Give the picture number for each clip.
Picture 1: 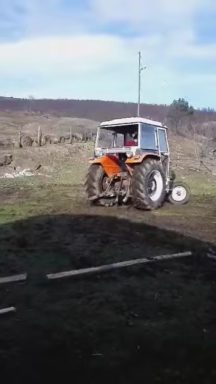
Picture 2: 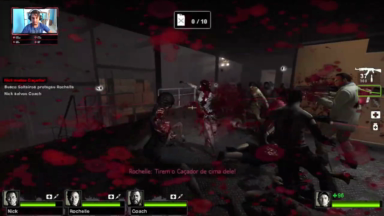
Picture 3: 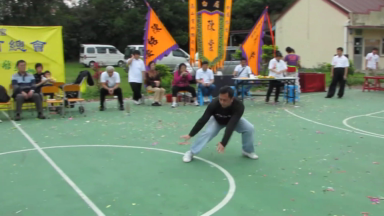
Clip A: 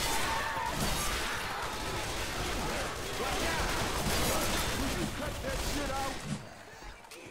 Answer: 2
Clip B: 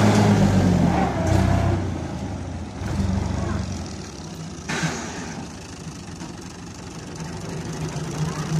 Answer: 1